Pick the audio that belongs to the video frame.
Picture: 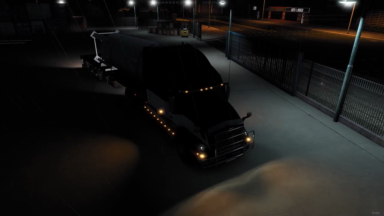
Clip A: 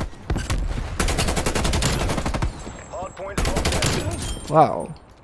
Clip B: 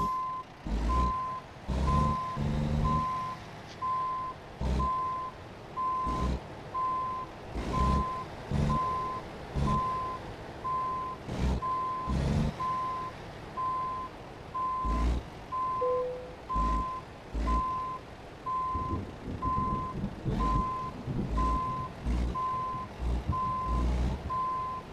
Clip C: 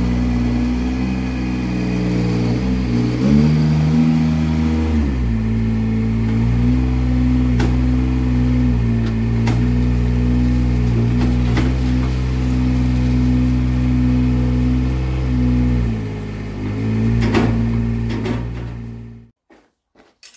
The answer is B